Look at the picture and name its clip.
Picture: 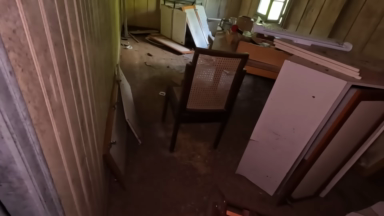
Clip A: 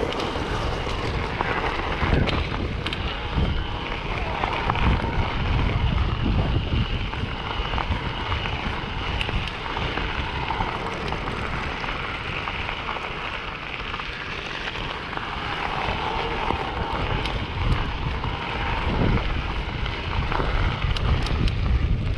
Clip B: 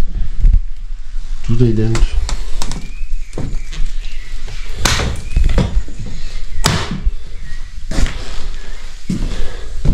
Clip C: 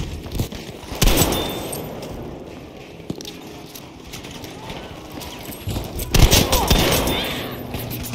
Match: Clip B